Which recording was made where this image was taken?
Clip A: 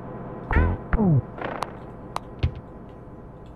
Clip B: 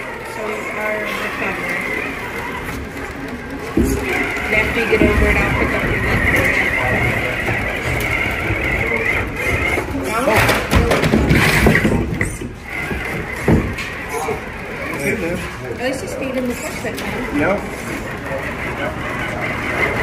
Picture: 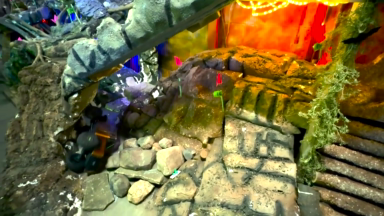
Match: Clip B